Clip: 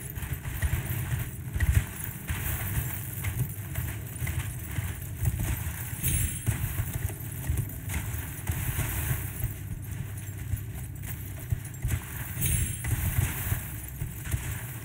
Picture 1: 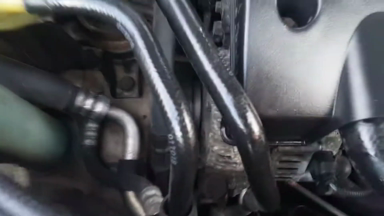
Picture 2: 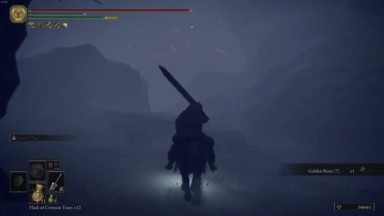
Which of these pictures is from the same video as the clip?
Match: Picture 2